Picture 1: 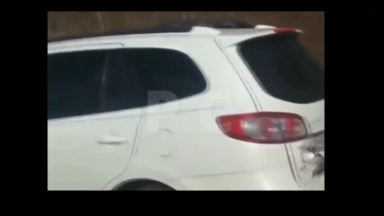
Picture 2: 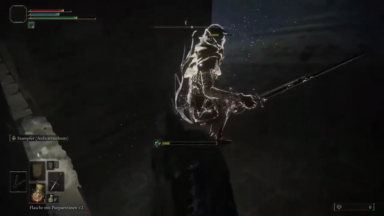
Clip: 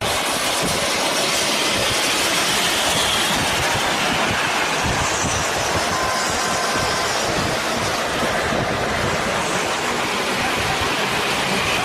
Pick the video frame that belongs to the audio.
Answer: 1